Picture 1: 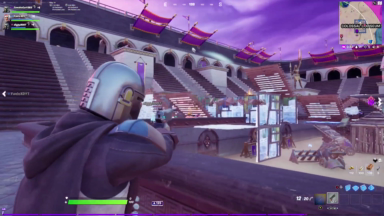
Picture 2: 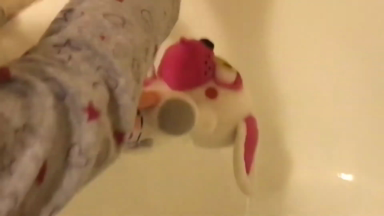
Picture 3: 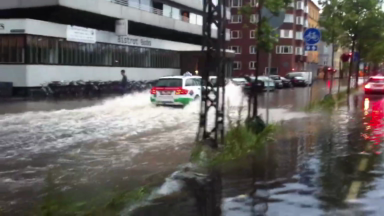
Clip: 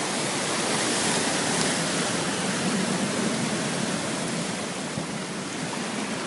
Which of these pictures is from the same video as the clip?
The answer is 3